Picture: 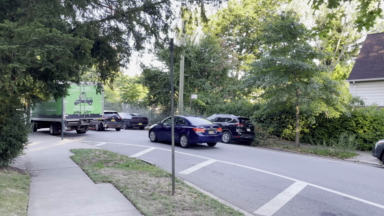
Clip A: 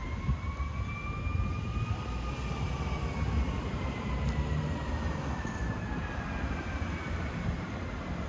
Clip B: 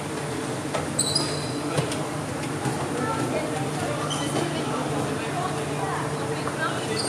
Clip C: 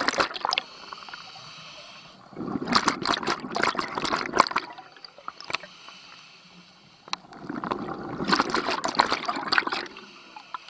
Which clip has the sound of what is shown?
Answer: A